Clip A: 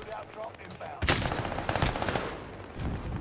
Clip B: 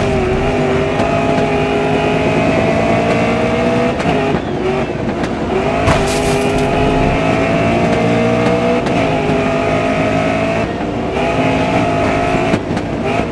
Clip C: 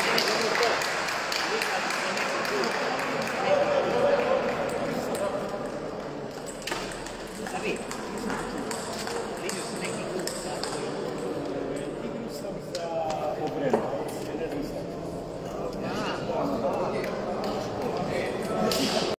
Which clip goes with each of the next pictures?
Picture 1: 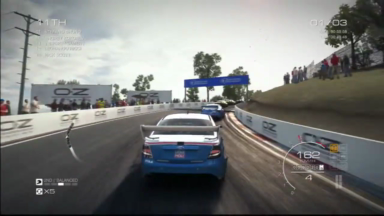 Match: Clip B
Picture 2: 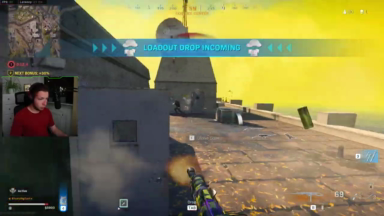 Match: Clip A